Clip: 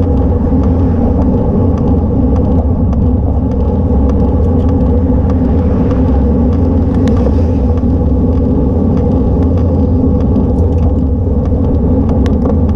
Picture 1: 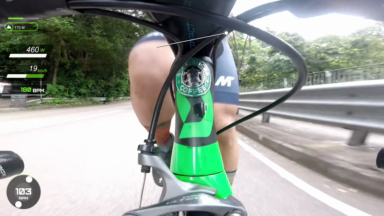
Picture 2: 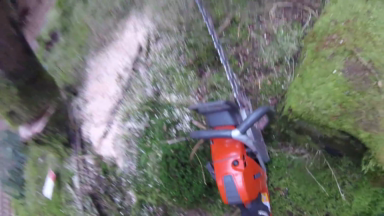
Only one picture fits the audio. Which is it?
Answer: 1